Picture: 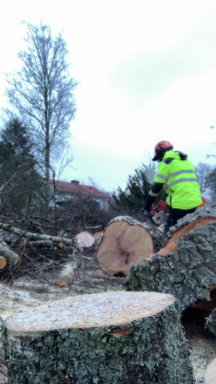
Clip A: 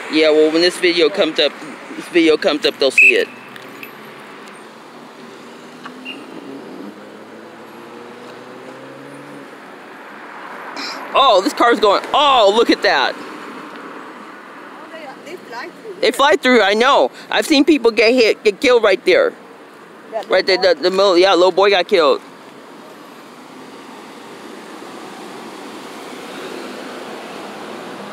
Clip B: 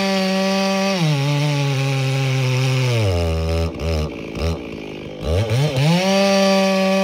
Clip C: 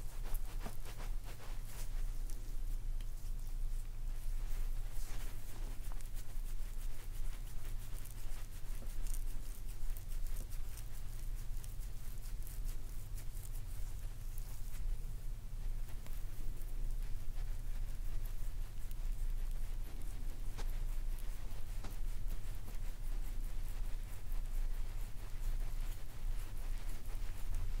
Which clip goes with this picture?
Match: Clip B